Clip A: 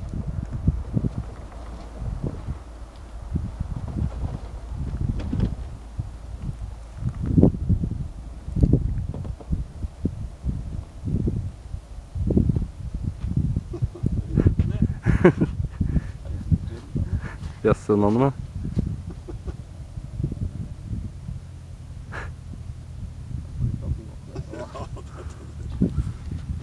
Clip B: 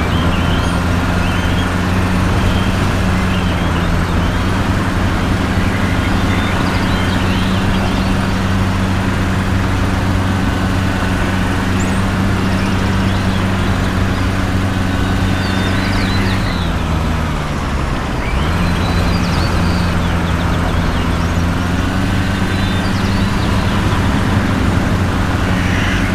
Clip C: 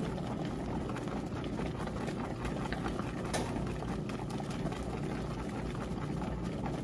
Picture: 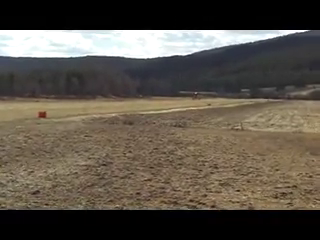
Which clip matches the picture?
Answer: A